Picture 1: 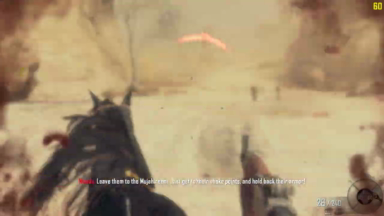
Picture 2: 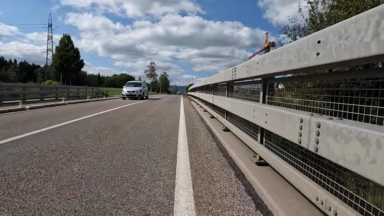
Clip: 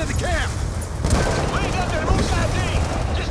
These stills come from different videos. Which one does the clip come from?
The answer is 1